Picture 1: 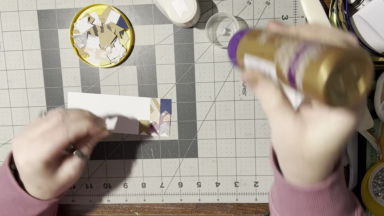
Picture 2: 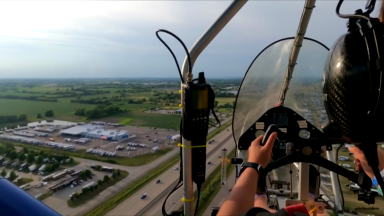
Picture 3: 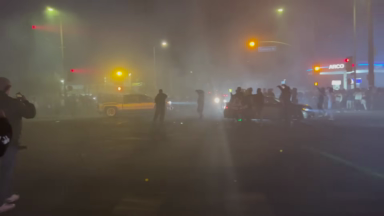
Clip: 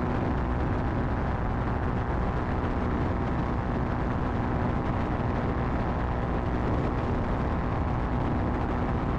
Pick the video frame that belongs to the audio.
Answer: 2